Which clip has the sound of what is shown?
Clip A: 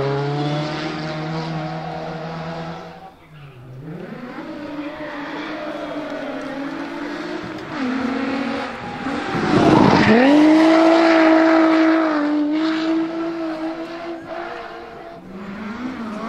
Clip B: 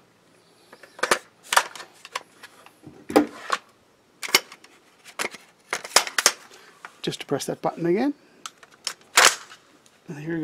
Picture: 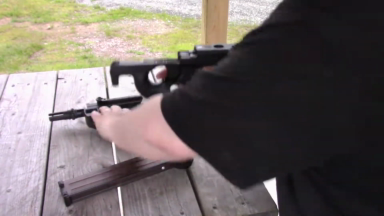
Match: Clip B